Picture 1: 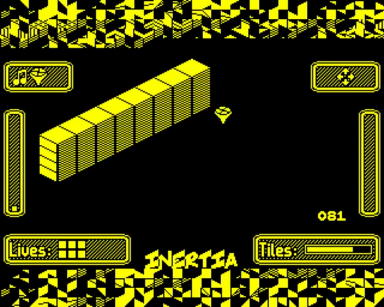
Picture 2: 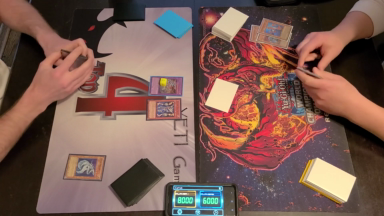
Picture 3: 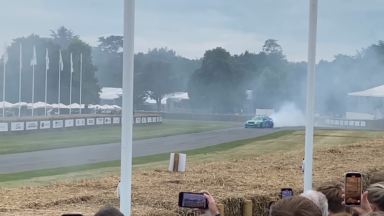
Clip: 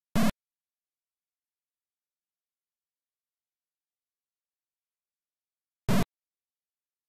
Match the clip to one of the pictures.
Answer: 1